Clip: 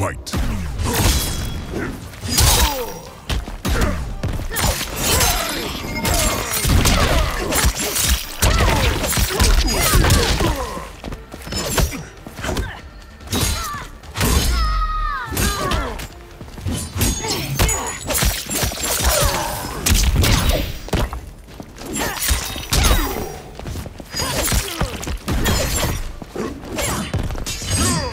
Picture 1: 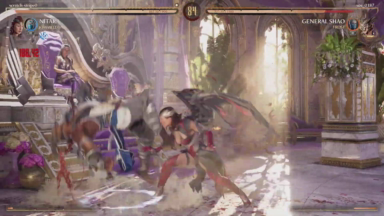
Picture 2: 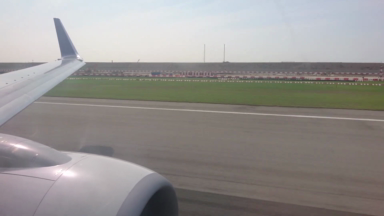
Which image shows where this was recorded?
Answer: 1